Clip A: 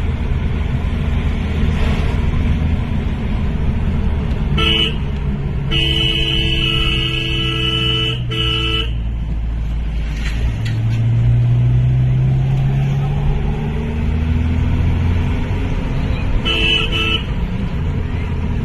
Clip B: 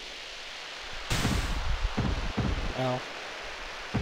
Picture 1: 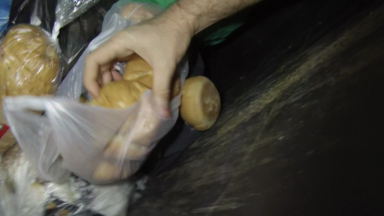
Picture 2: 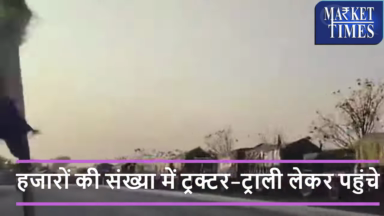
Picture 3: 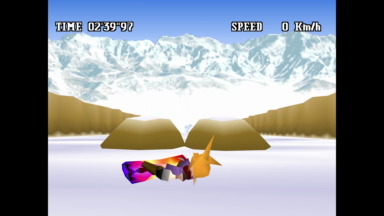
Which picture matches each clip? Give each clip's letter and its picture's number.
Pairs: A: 2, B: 3